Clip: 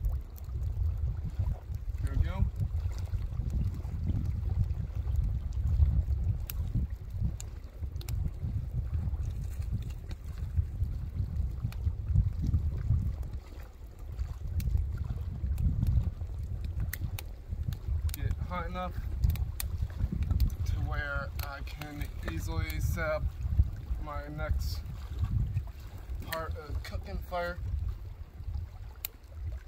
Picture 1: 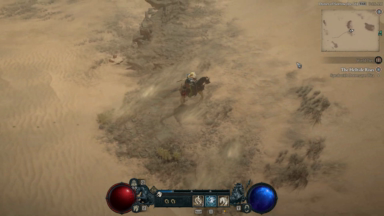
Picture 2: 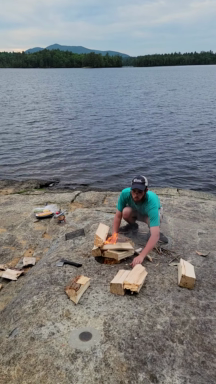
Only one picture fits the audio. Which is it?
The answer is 2